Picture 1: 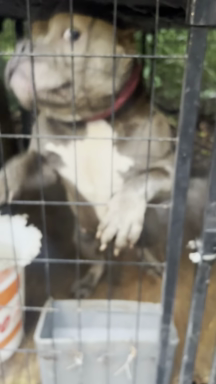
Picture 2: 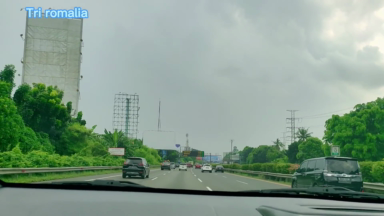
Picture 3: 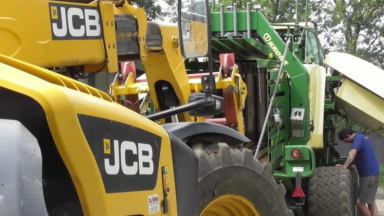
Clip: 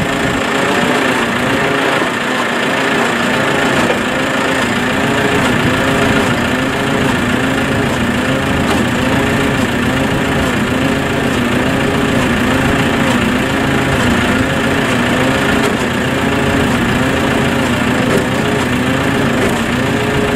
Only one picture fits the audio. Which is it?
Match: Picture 3